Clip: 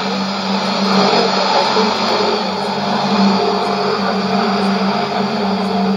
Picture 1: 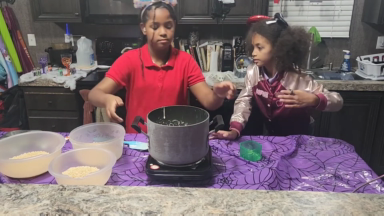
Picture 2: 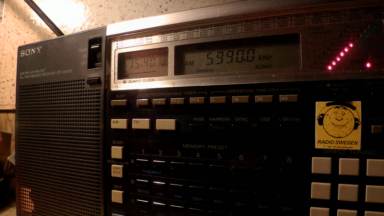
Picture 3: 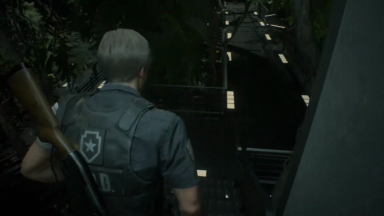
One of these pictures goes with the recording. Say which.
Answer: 2